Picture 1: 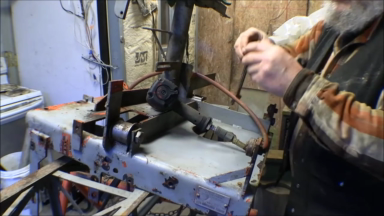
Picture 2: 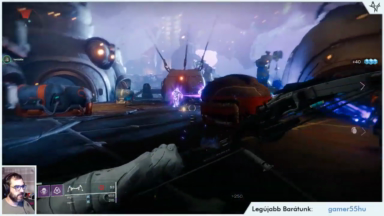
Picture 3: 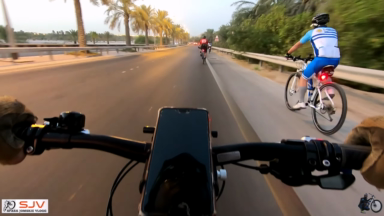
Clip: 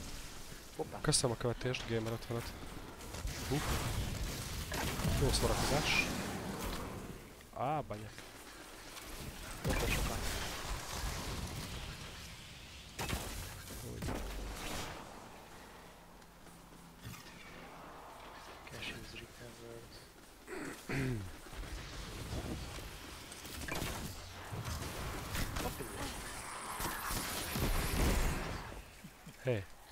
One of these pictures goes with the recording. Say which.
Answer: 2